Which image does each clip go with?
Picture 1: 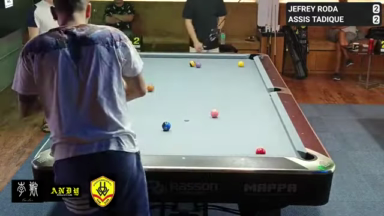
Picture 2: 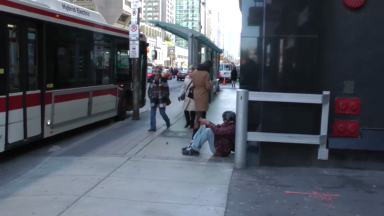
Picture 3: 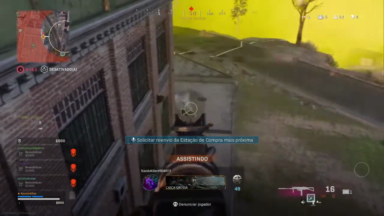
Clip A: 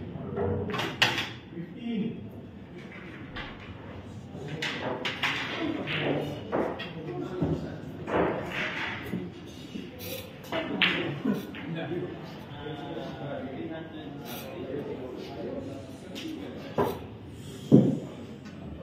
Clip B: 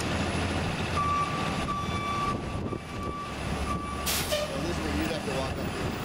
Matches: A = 1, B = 2